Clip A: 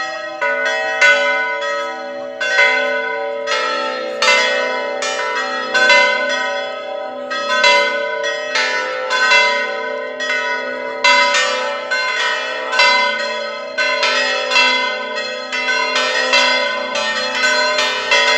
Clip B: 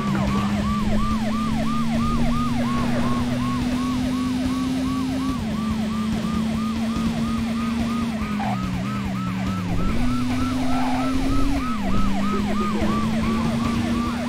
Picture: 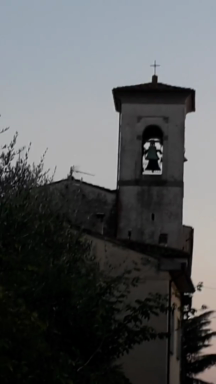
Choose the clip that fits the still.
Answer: A